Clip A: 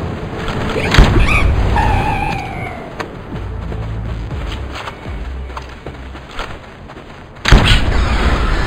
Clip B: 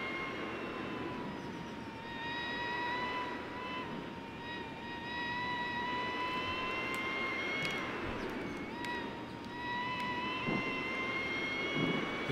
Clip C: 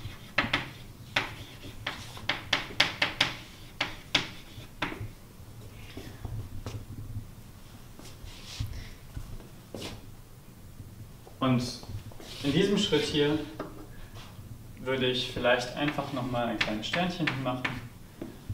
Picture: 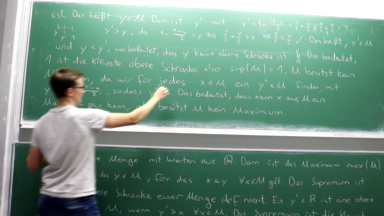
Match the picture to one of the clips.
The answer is C